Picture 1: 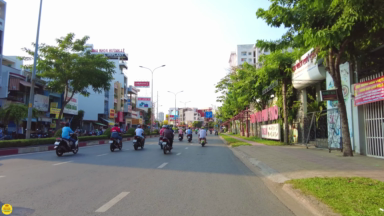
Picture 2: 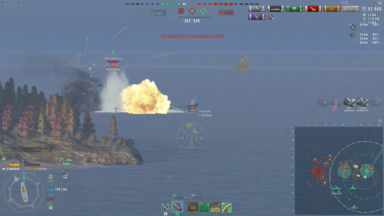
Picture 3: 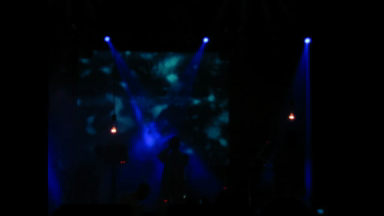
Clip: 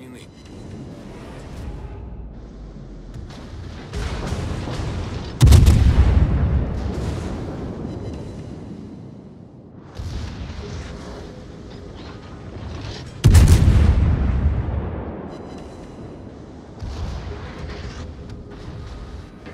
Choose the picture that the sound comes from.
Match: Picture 2